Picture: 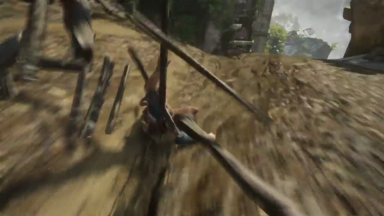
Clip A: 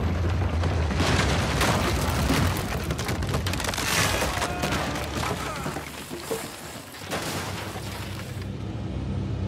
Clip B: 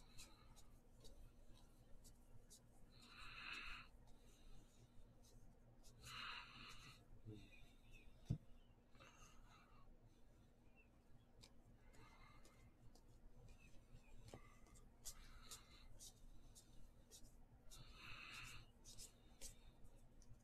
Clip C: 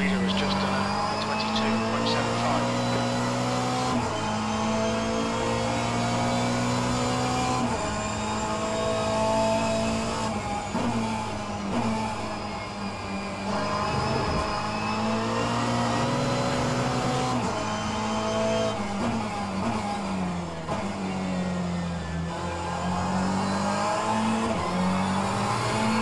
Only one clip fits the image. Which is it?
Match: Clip A